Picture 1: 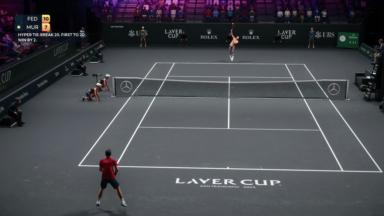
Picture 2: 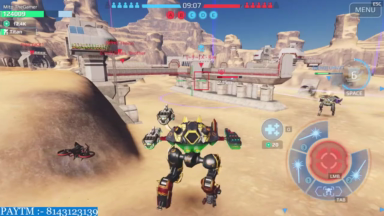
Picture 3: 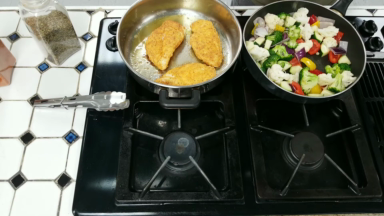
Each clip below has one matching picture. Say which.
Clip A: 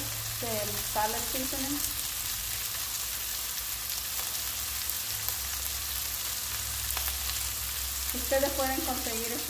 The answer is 3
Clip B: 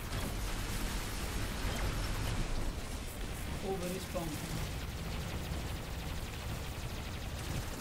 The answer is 2